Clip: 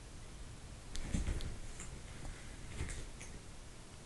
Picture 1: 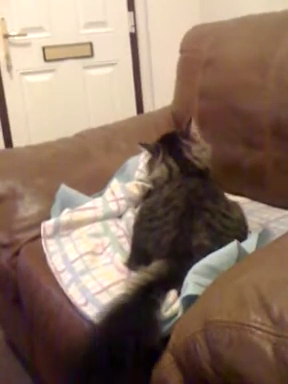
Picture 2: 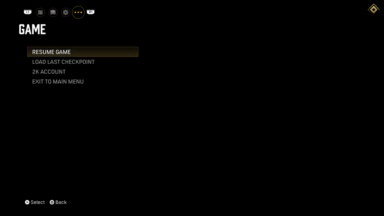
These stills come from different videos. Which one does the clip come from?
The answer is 1